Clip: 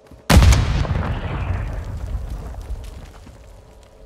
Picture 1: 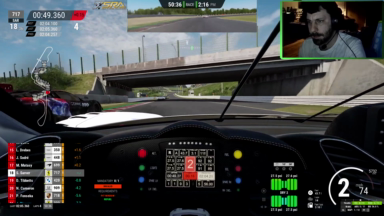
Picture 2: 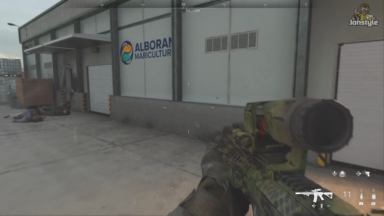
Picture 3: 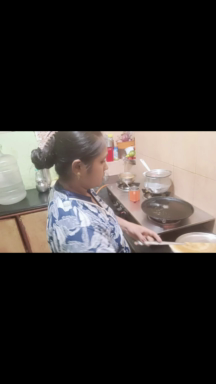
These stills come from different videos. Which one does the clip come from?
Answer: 2